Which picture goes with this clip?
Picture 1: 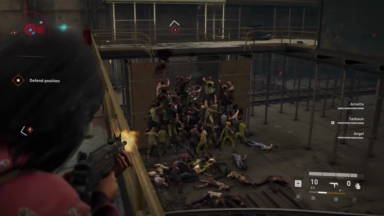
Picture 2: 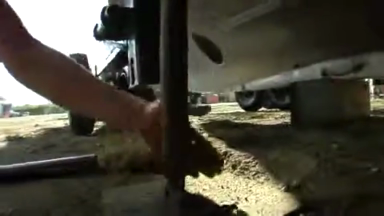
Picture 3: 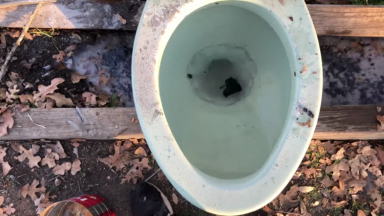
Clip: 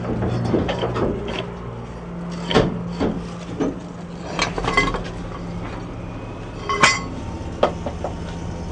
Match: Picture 2